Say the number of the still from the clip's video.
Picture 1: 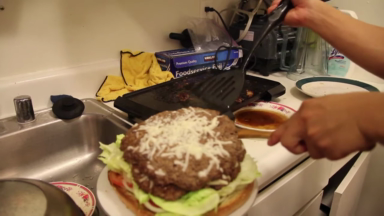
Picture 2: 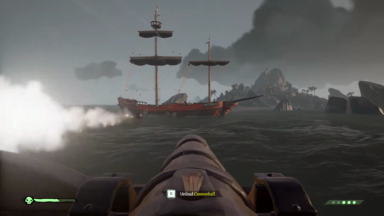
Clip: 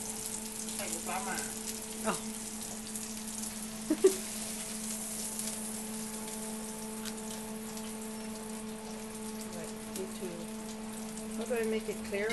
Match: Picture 1